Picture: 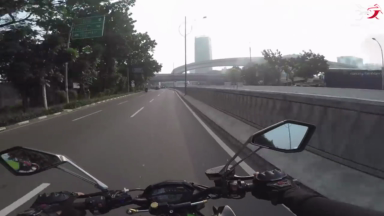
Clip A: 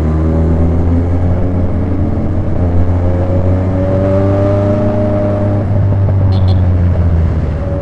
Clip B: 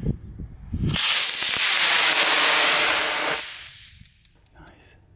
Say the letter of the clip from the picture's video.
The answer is A